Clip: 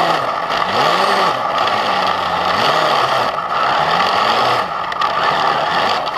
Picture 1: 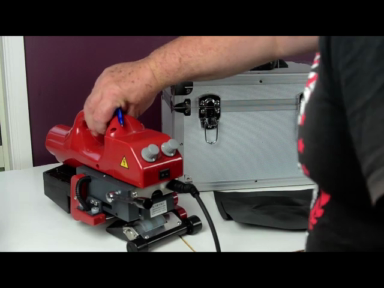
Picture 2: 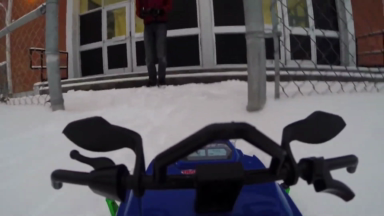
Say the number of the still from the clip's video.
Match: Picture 2